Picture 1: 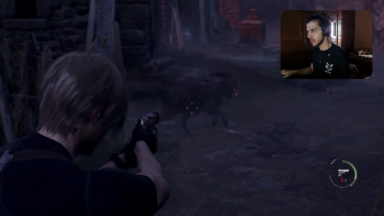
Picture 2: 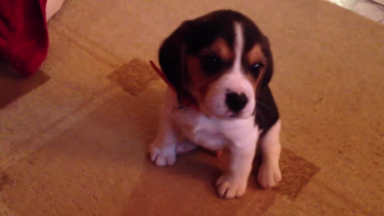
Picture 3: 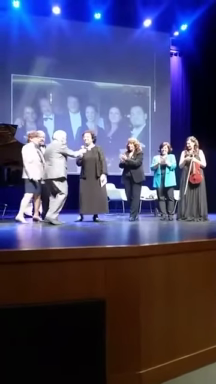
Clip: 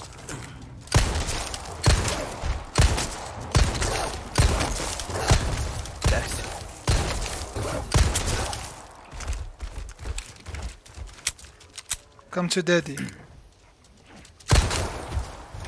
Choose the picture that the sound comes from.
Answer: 1